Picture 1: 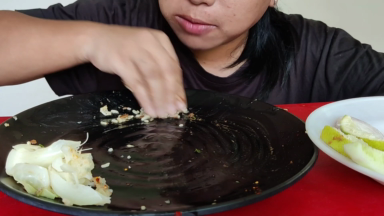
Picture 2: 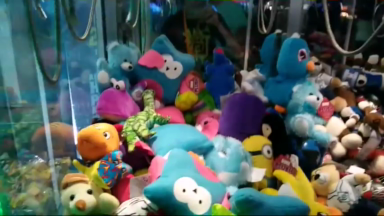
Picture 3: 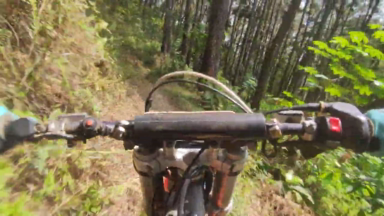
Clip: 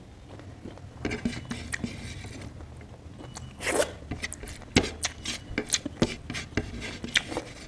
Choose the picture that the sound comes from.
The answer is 1